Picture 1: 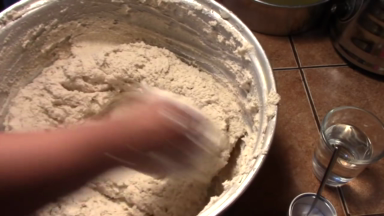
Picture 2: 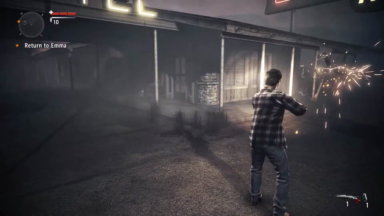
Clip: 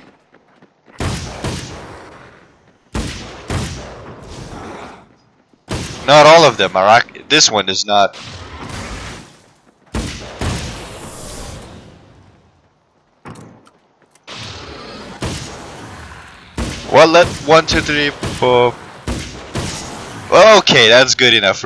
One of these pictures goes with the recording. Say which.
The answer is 2